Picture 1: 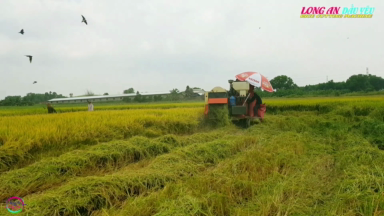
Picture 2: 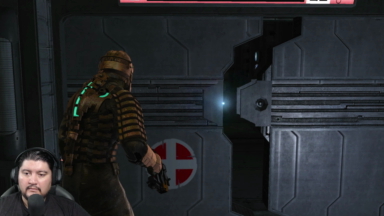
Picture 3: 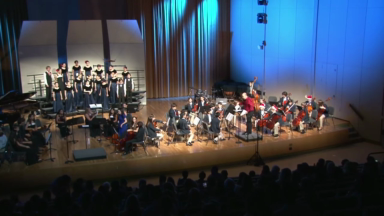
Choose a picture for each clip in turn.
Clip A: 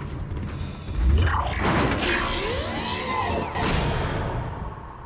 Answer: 2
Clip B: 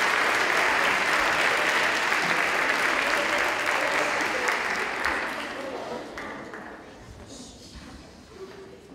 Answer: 3